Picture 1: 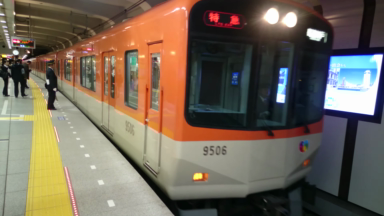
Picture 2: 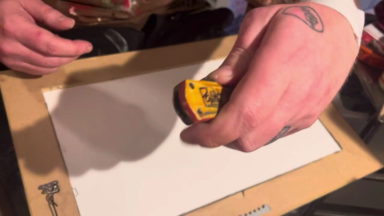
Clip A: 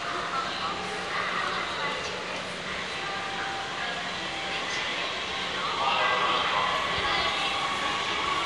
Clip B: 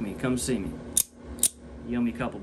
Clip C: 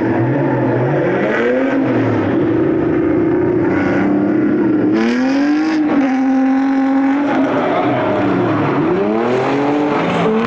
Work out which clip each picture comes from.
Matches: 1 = A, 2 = B